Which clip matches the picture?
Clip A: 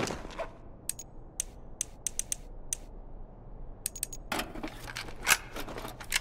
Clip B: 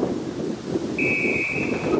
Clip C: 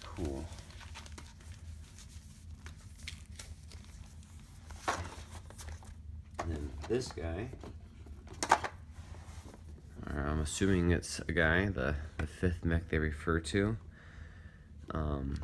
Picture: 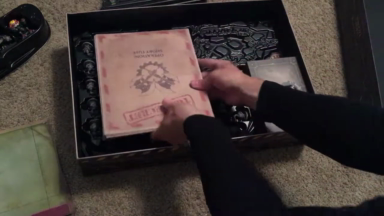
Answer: C